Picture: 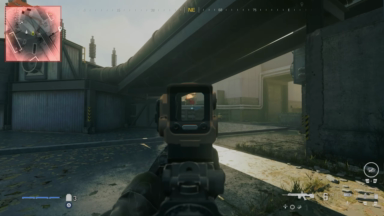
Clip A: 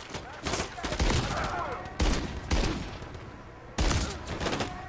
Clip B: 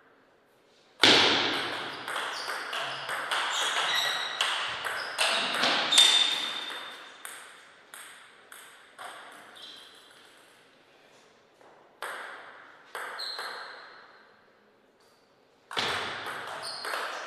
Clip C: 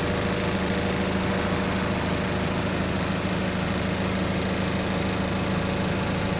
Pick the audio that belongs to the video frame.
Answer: A